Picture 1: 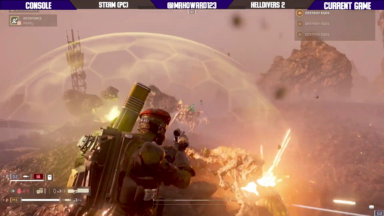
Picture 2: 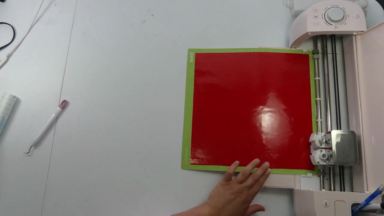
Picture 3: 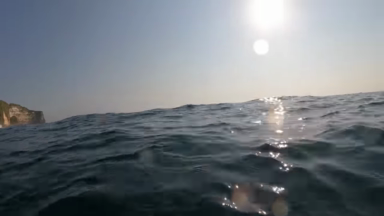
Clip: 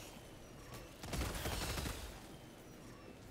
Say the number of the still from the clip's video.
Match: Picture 1